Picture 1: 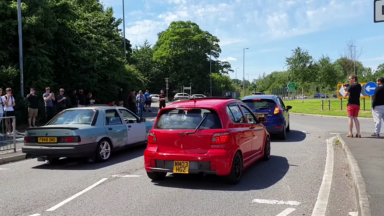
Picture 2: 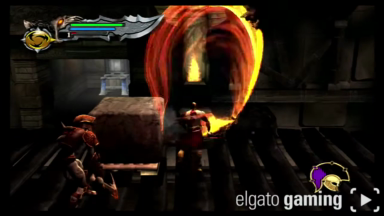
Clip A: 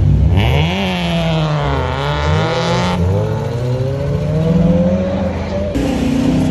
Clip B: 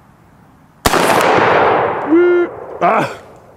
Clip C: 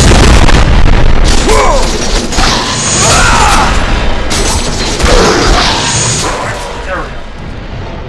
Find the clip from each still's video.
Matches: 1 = A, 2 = C